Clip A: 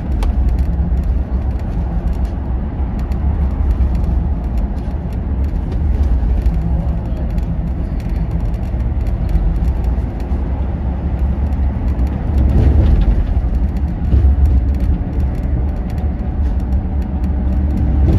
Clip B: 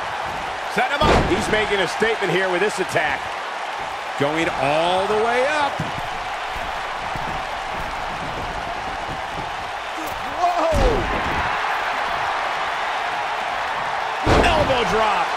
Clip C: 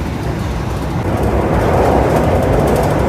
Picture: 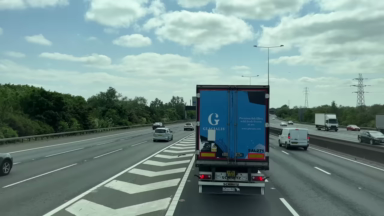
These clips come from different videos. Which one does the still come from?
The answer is A